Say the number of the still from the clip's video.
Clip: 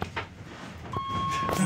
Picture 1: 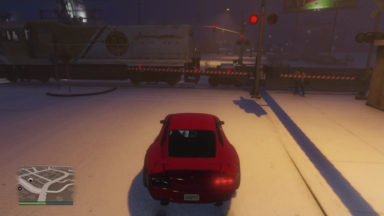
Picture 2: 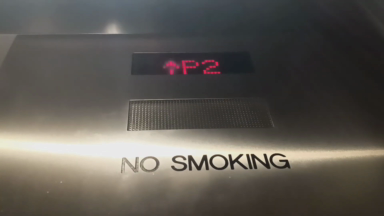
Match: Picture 2